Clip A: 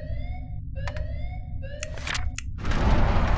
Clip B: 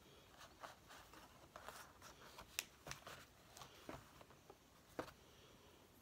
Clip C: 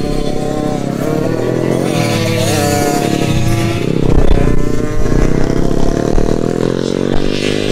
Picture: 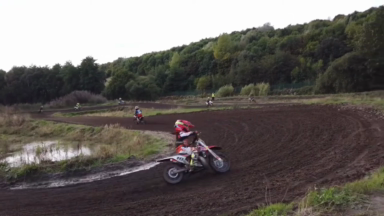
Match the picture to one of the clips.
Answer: C